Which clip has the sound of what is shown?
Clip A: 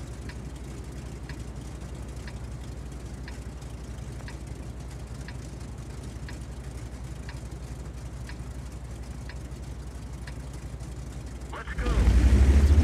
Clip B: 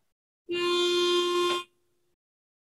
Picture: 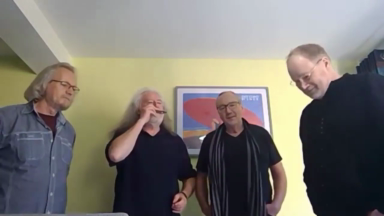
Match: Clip B